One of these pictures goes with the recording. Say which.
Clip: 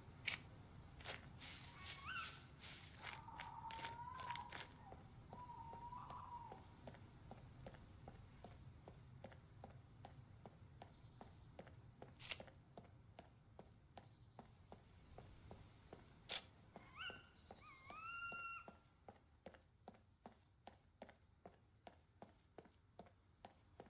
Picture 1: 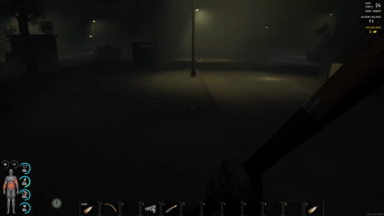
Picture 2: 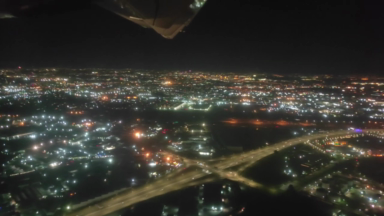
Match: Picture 1